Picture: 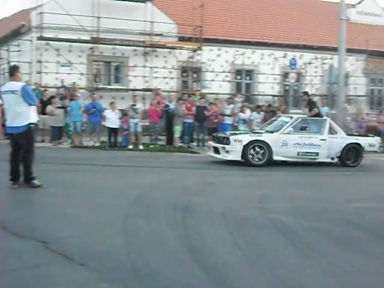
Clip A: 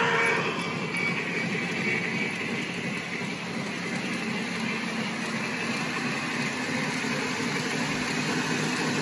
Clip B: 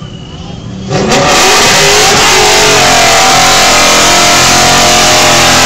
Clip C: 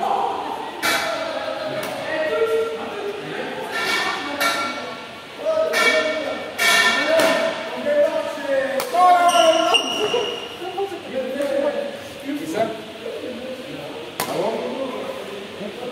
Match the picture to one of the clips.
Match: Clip B